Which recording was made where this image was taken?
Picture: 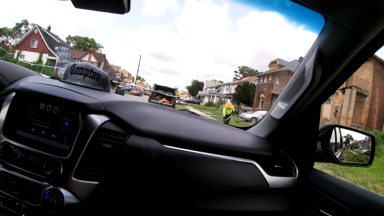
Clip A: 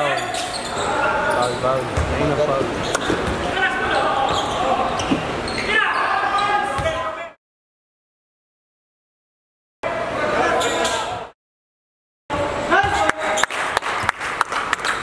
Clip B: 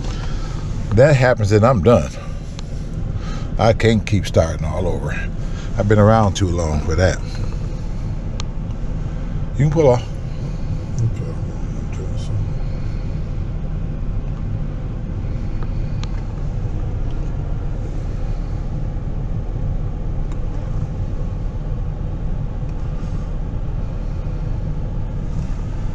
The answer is B